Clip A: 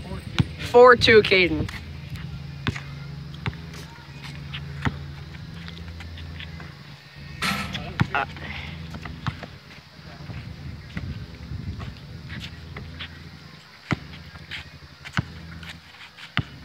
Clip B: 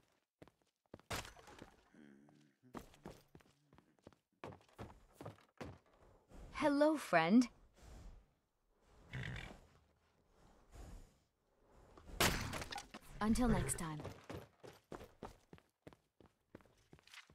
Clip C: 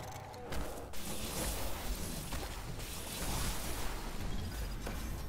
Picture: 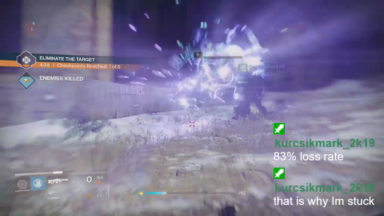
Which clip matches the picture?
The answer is C